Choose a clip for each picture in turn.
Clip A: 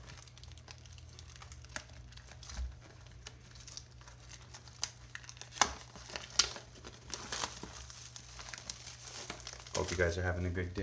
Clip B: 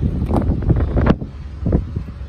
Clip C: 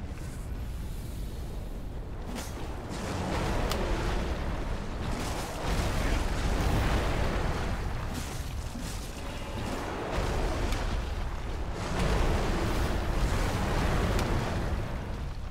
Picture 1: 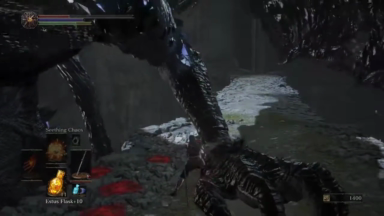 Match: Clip C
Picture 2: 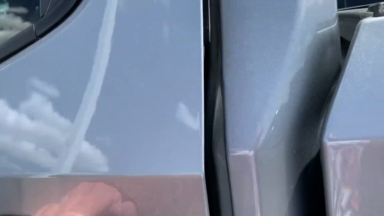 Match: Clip B